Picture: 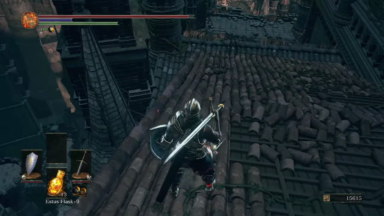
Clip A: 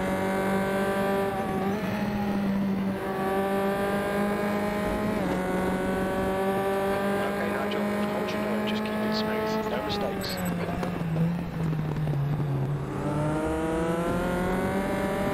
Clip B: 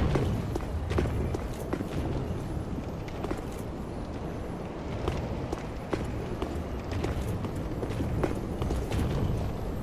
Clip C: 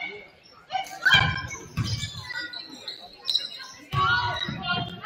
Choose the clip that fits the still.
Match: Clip B